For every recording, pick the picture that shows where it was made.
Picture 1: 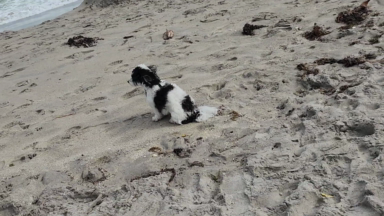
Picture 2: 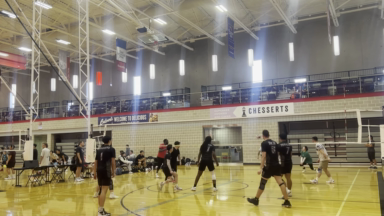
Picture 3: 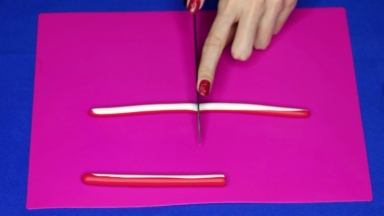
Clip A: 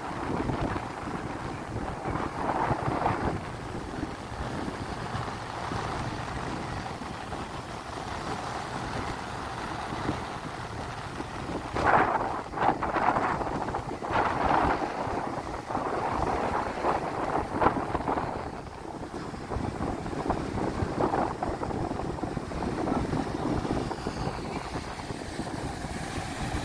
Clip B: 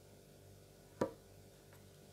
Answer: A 1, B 3